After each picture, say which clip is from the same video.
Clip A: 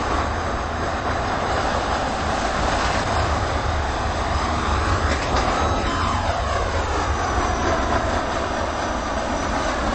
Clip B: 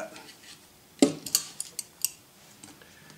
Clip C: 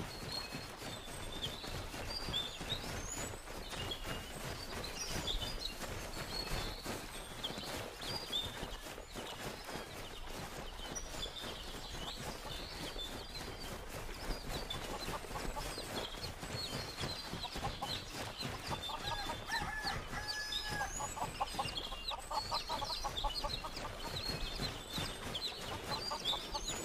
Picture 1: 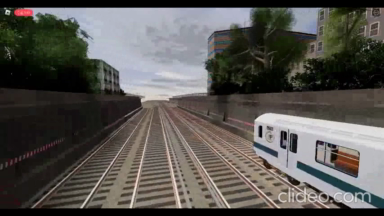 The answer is A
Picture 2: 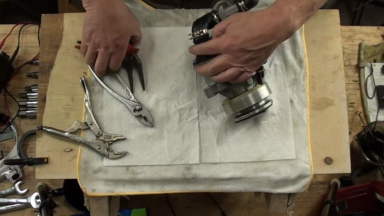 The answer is B